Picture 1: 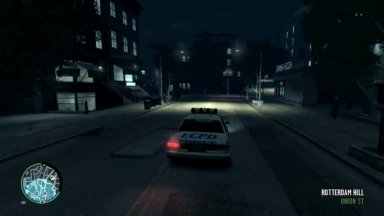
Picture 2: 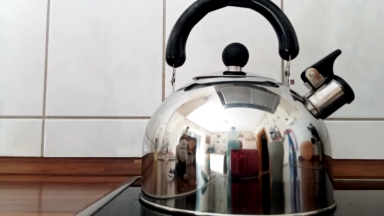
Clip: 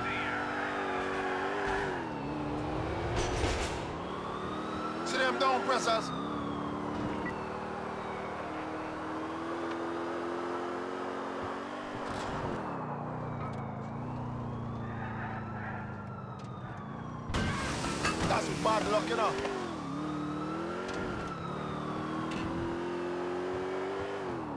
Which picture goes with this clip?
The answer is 1